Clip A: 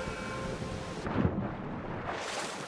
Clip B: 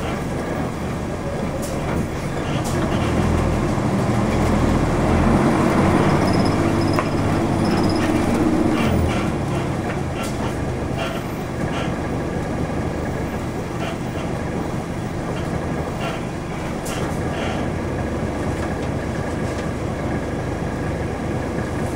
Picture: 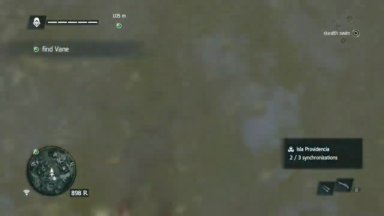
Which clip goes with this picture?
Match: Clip A